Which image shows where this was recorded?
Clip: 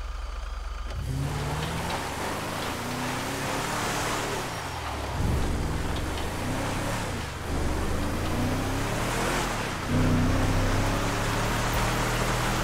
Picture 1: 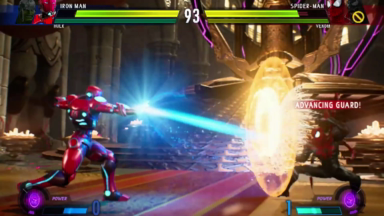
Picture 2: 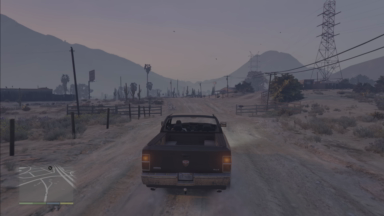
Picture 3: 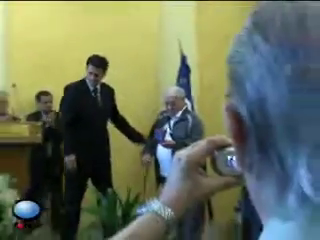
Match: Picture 2